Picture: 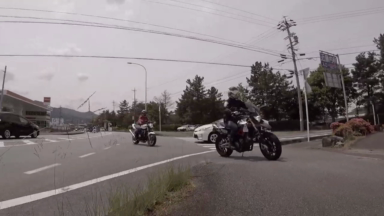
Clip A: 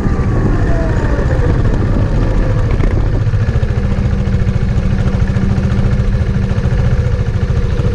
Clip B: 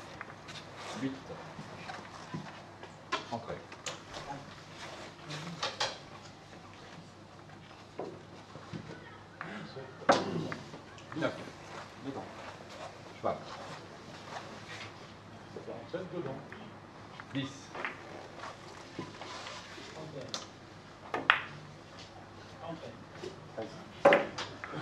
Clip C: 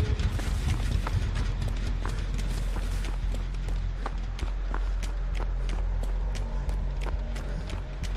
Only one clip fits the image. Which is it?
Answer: A